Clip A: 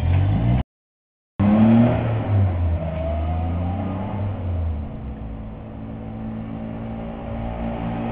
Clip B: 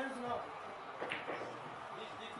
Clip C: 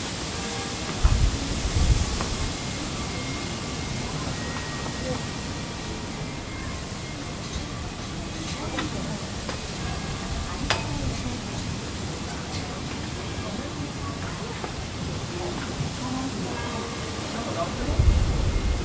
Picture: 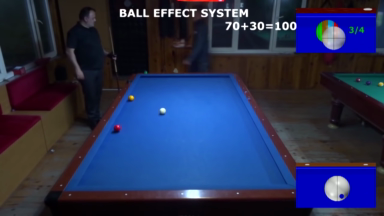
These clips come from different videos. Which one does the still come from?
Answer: B